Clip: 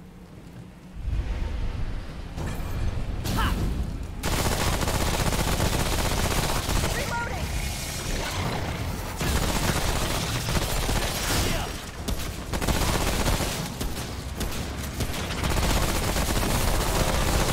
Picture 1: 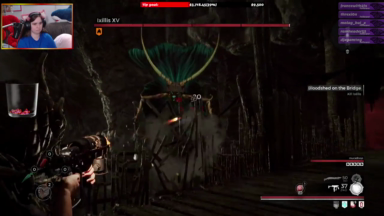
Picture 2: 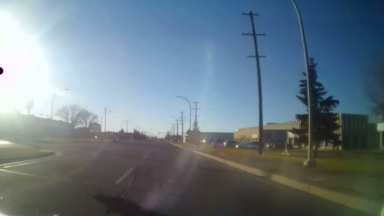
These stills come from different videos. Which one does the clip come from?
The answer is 1